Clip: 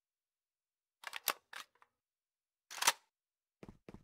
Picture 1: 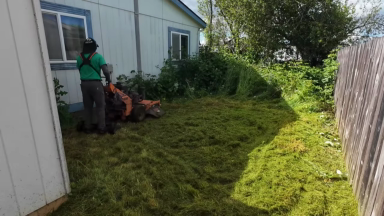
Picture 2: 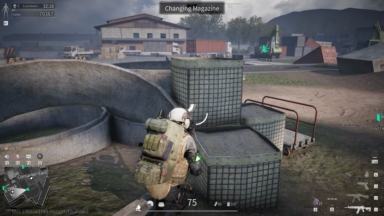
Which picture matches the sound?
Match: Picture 2